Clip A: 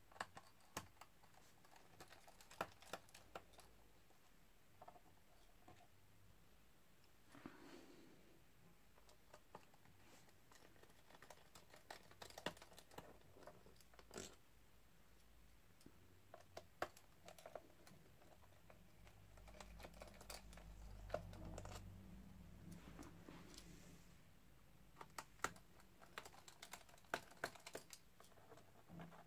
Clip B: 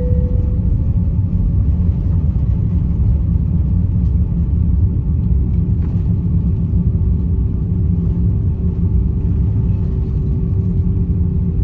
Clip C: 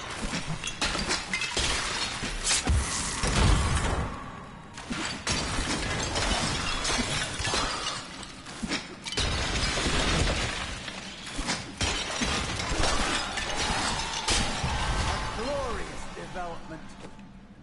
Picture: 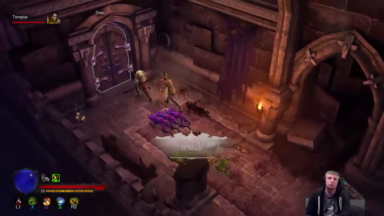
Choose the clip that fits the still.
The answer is C